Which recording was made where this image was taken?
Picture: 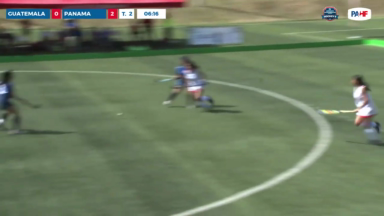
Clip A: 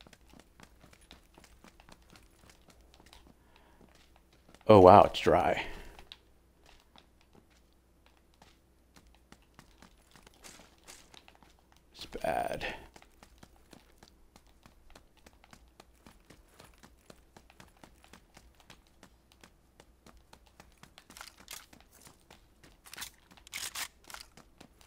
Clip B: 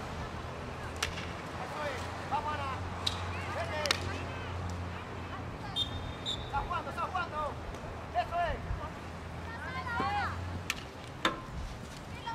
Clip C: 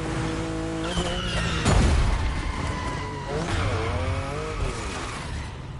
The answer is B